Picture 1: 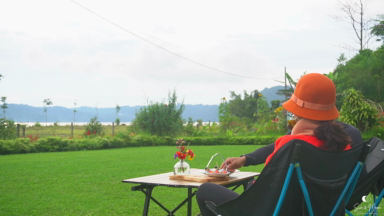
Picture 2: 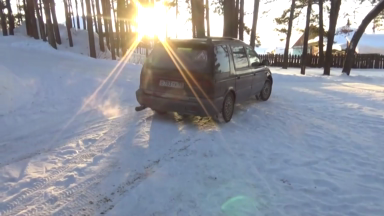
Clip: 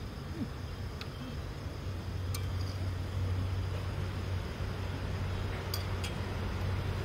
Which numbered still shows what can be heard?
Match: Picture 1